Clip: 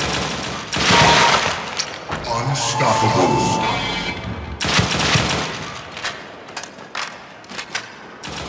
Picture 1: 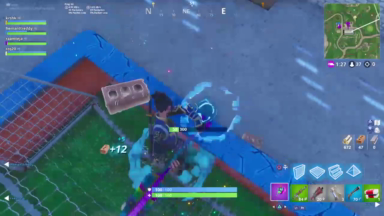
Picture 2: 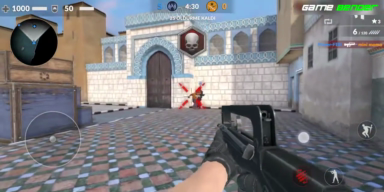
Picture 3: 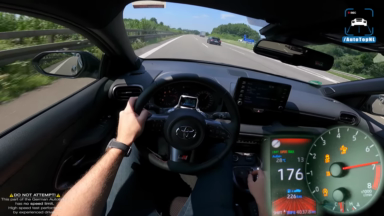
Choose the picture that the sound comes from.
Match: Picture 2